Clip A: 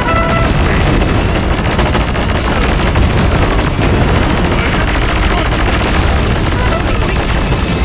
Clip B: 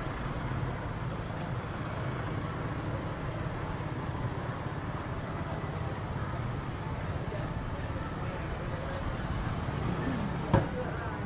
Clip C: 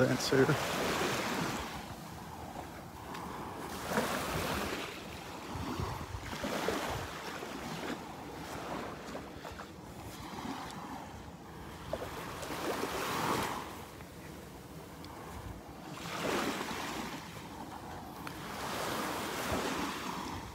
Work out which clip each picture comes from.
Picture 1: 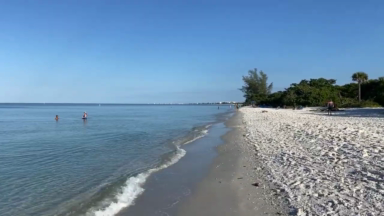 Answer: C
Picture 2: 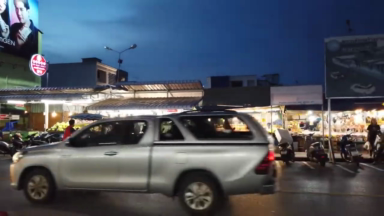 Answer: B